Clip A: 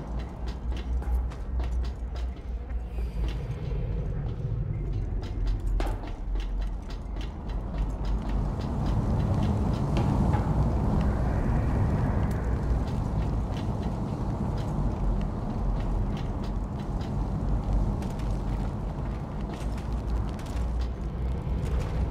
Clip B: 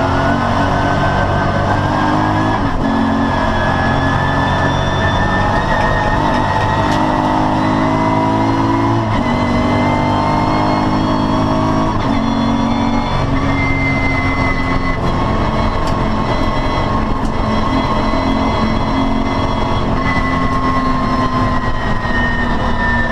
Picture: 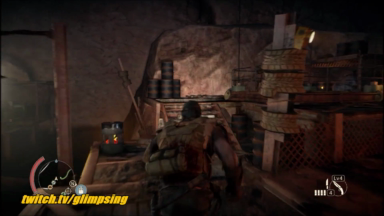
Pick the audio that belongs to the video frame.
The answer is A